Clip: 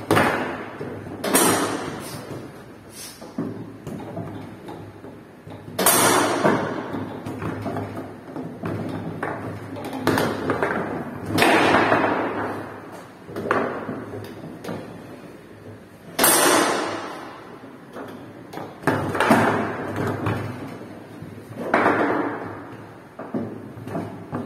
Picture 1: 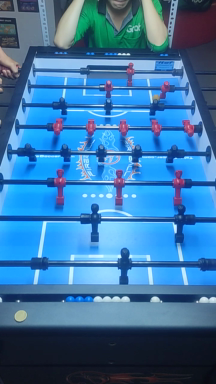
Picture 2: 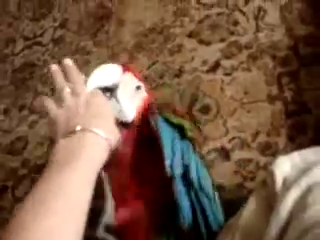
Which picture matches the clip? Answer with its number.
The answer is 1